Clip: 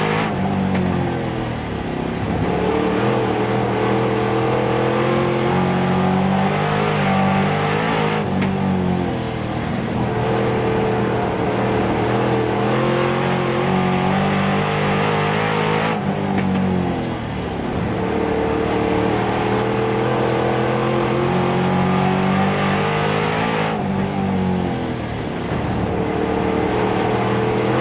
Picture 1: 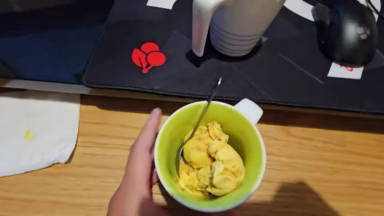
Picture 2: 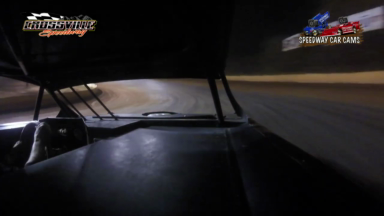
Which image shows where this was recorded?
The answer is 2